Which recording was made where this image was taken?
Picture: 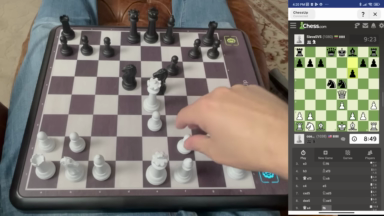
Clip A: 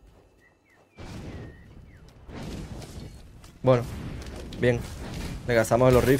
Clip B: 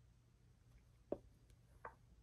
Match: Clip B